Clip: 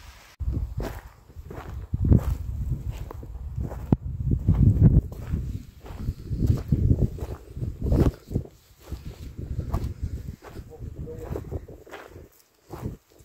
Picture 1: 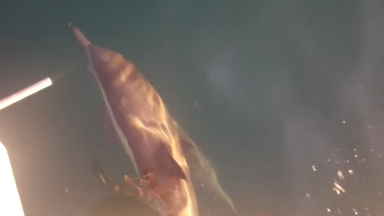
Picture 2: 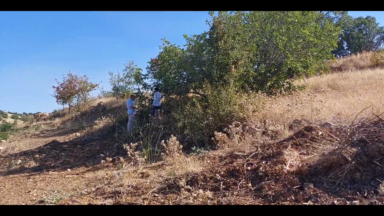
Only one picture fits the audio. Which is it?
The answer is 2